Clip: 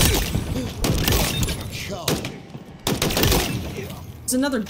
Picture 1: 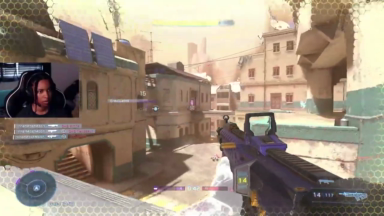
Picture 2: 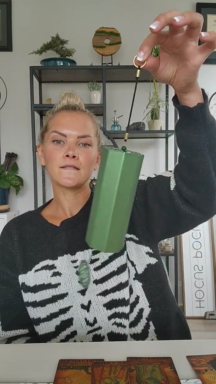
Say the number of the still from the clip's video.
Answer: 1